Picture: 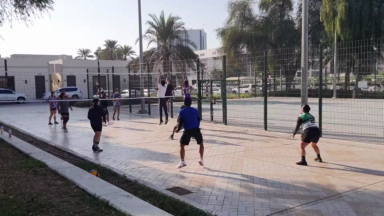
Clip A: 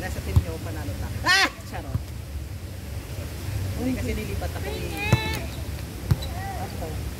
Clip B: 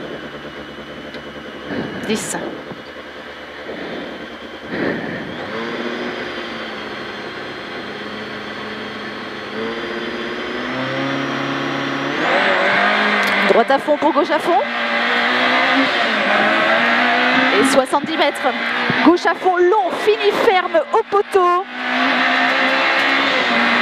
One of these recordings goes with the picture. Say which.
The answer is A